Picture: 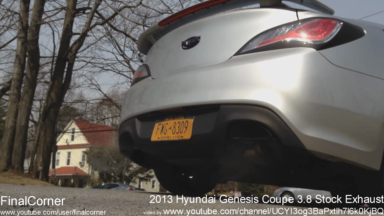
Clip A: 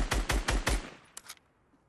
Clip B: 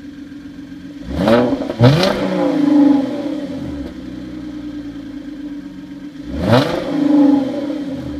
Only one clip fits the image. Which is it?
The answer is B